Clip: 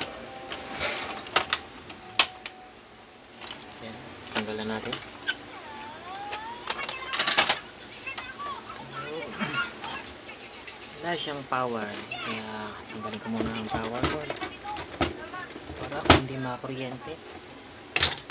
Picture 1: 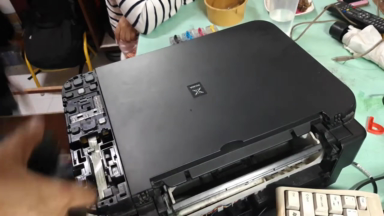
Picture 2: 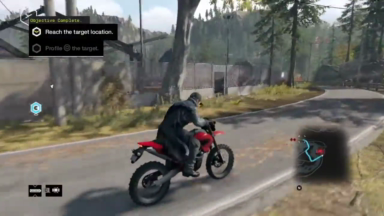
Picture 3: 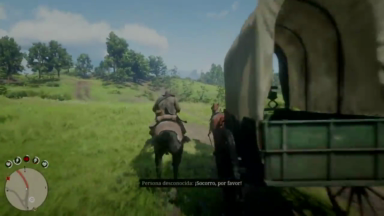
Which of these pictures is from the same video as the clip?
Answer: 1